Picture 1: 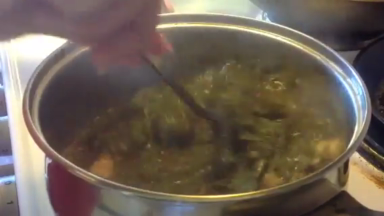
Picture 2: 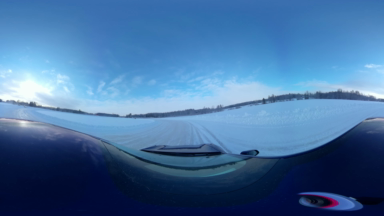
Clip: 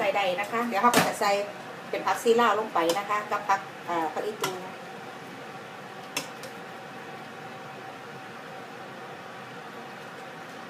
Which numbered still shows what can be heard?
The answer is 1